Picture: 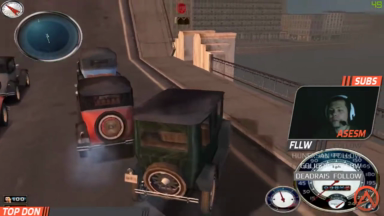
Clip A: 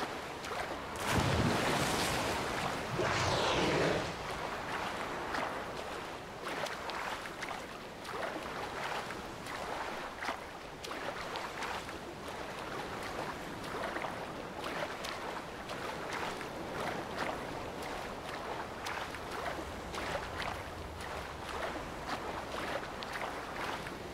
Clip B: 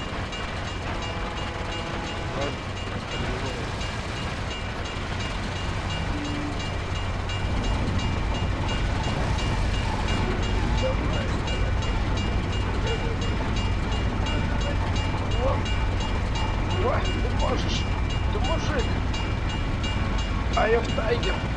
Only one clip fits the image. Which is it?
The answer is B